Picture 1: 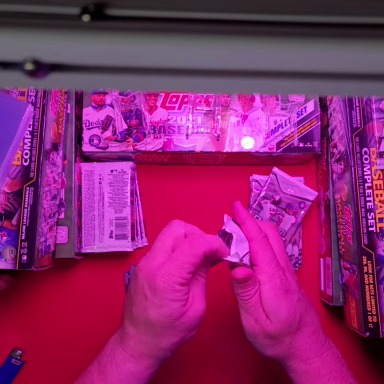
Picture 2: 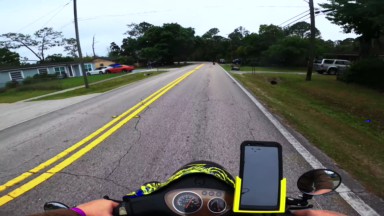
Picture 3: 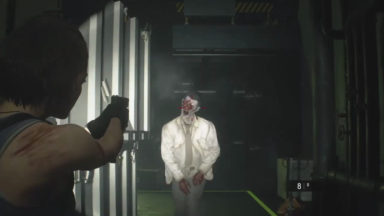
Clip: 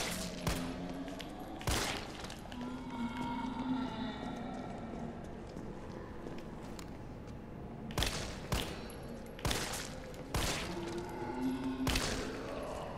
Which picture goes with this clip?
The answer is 3